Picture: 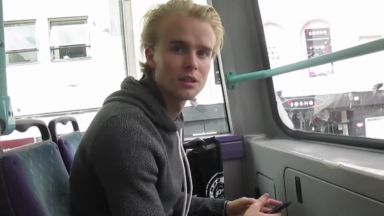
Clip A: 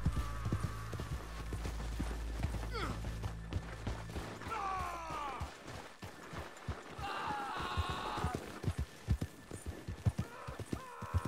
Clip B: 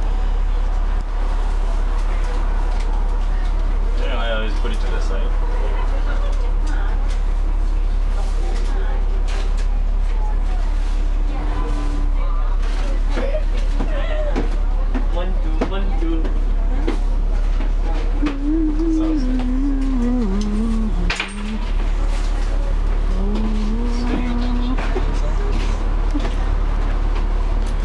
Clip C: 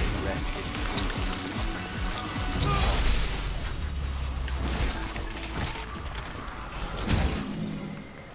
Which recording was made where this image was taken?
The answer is B